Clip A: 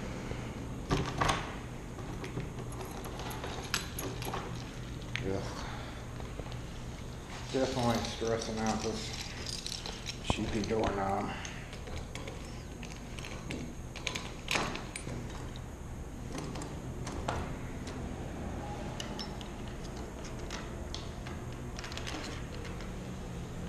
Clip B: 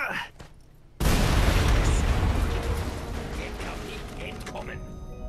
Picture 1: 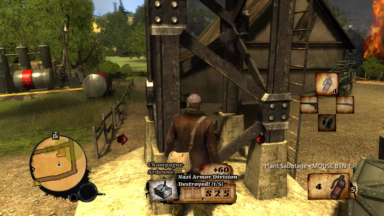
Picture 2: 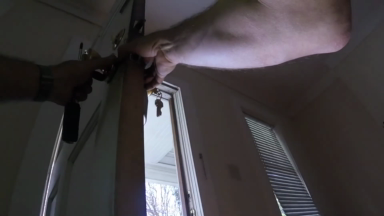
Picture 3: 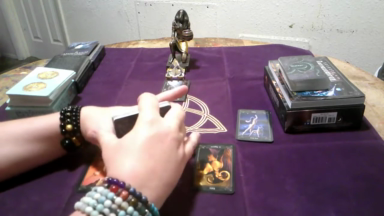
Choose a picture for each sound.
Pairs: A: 2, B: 1